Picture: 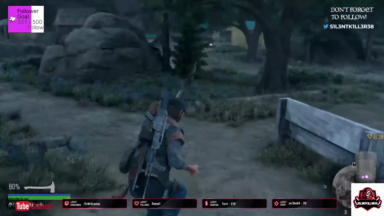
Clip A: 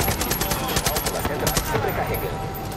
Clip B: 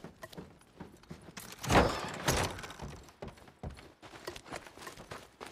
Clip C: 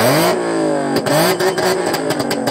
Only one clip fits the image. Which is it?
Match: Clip B